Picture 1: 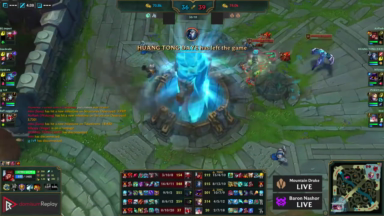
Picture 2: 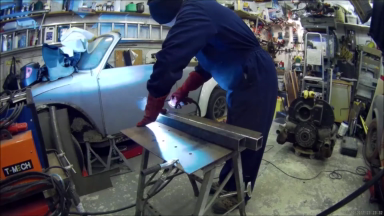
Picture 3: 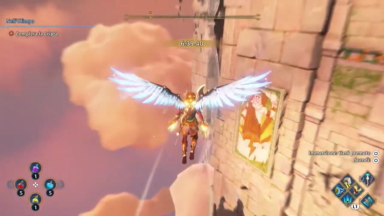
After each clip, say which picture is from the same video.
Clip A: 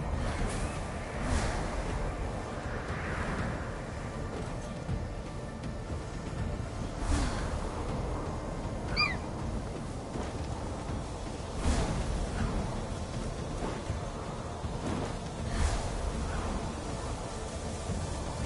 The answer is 3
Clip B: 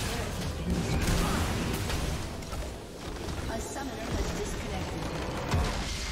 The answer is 1